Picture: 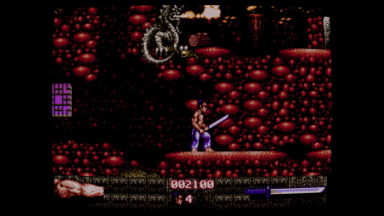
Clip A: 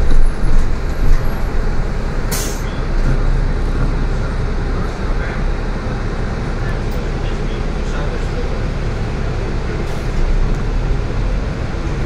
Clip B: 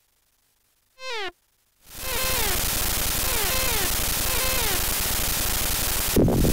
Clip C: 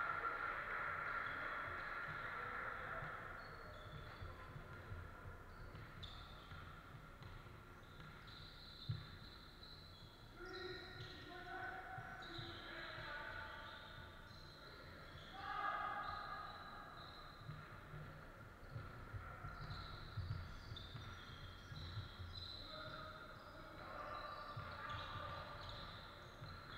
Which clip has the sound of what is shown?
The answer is B